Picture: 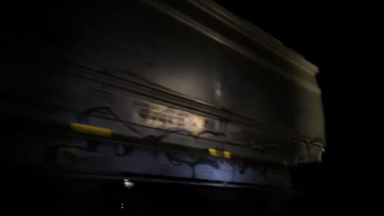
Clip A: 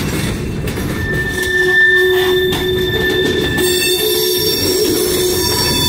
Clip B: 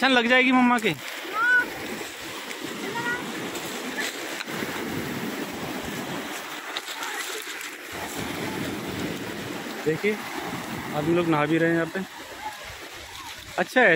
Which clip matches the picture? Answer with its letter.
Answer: A